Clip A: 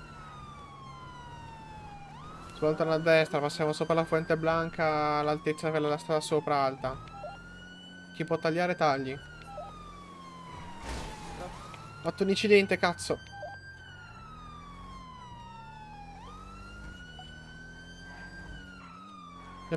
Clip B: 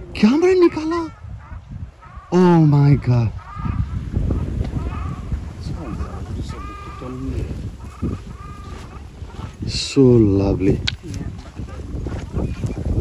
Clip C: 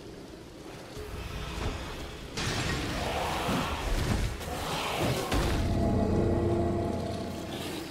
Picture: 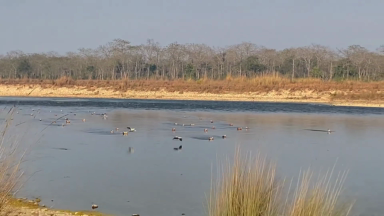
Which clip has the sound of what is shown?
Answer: B